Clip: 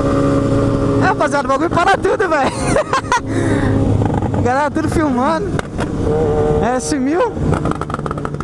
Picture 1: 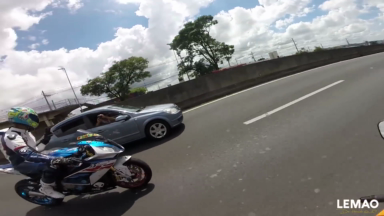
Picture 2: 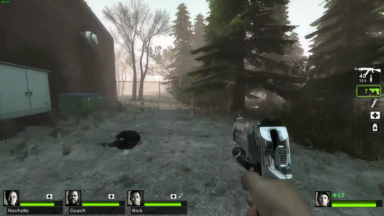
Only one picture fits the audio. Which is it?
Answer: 1